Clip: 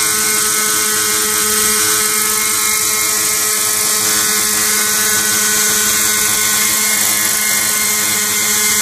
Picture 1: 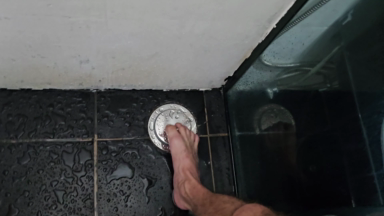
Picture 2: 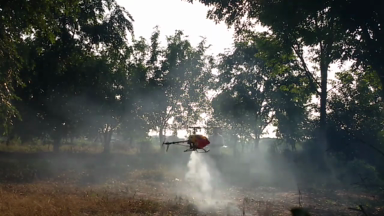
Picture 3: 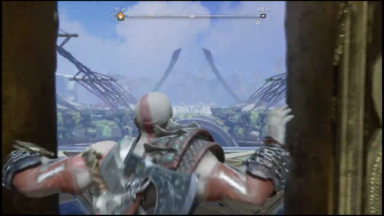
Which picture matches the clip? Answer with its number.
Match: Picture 2